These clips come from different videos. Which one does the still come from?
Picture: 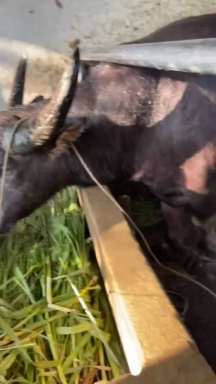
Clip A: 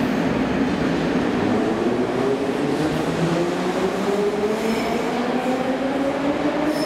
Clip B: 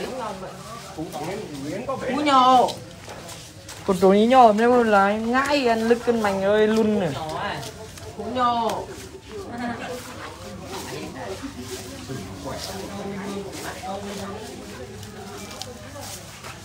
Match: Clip B